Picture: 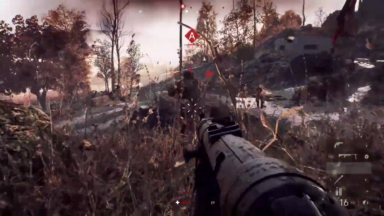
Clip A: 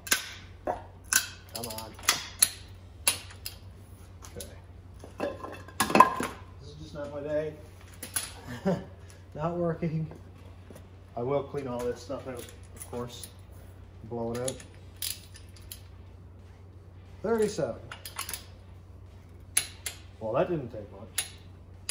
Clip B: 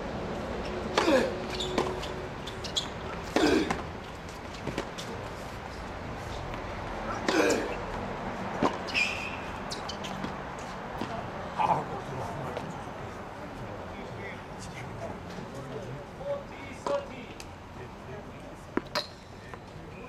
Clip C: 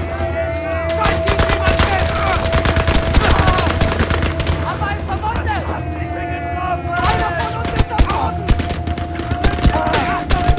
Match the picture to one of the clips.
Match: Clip C